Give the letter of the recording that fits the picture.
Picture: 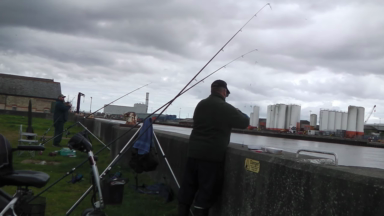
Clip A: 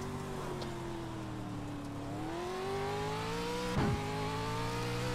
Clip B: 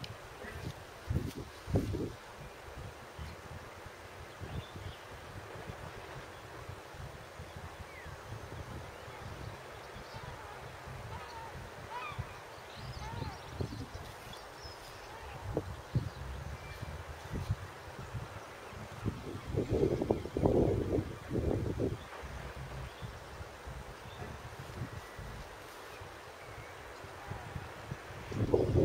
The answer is B